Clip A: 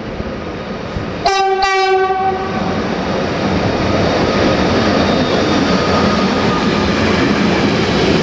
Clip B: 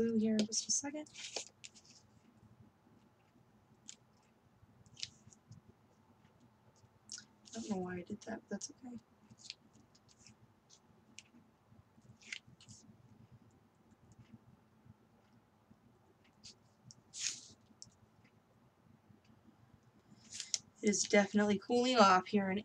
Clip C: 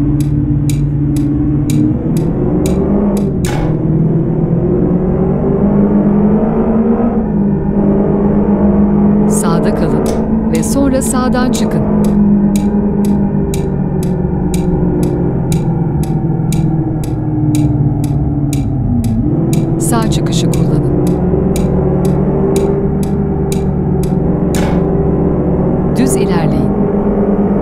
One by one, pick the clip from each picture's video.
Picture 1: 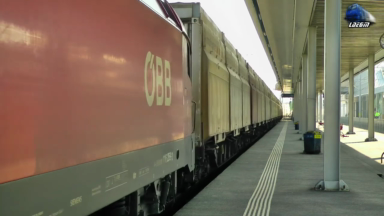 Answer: A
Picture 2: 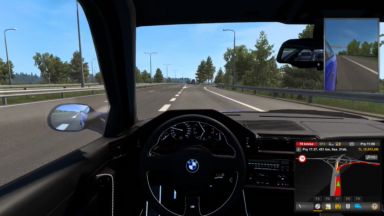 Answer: C